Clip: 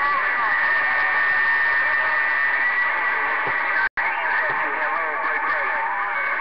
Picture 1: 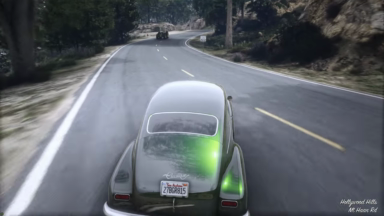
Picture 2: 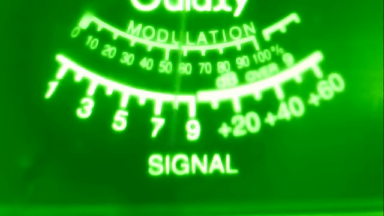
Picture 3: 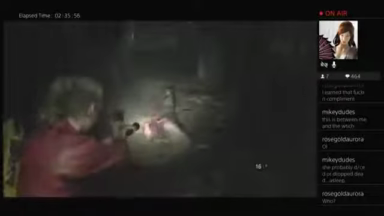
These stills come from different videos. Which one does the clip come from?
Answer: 2